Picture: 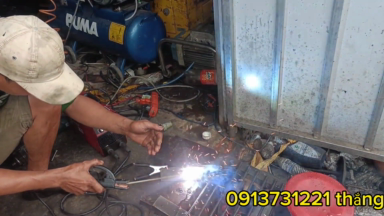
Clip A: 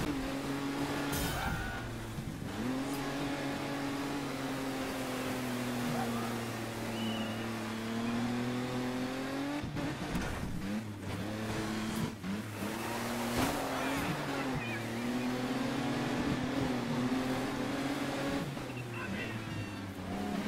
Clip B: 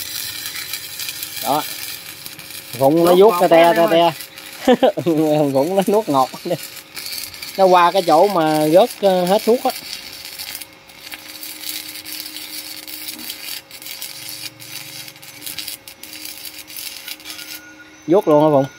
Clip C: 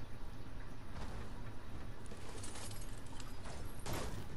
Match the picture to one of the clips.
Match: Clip B